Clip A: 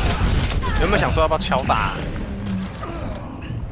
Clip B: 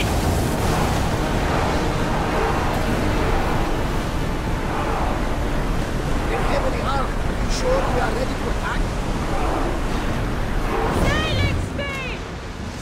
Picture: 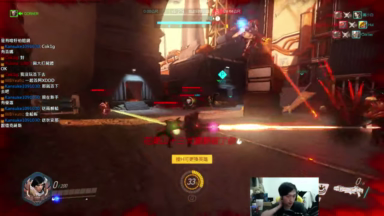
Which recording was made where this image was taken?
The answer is A